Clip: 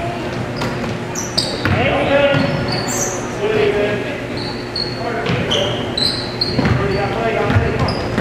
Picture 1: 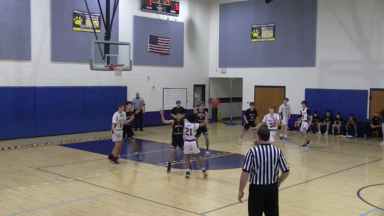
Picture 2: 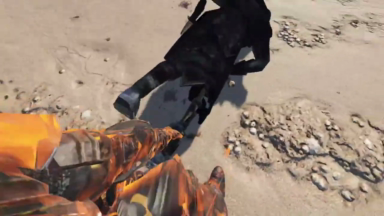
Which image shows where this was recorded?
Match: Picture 1